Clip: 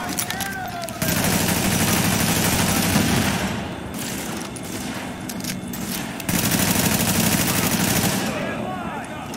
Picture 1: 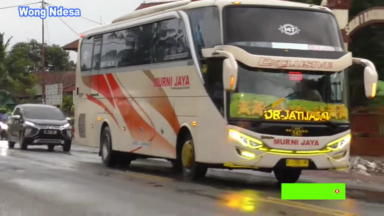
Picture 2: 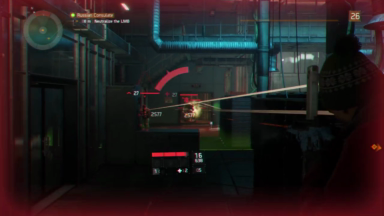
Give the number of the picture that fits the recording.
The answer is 2